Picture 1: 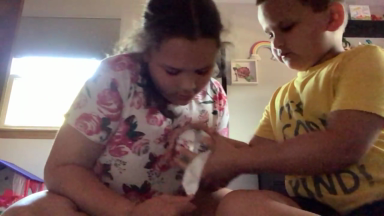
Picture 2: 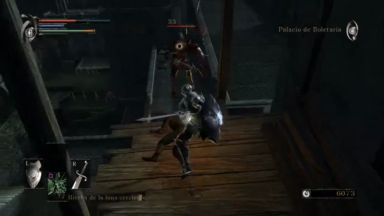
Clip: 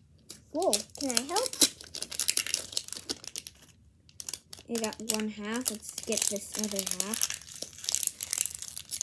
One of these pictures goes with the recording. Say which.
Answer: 1